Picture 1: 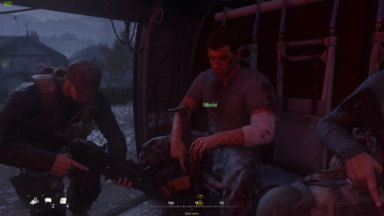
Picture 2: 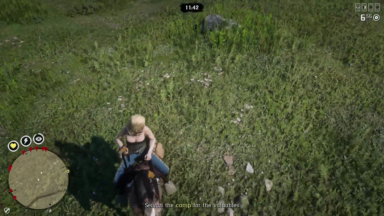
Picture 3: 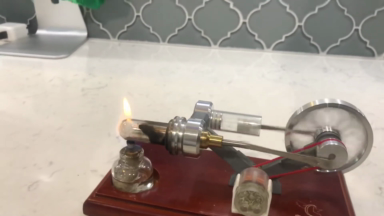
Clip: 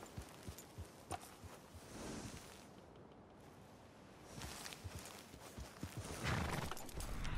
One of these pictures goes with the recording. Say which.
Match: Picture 2